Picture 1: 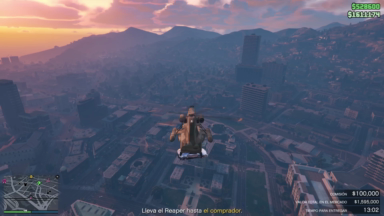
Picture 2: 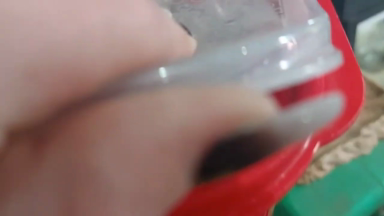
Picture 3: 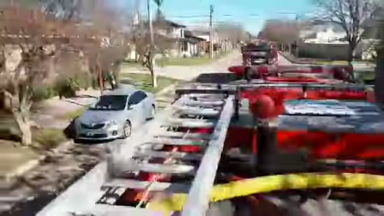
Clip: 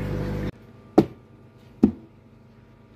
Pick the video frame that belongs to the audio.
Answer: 2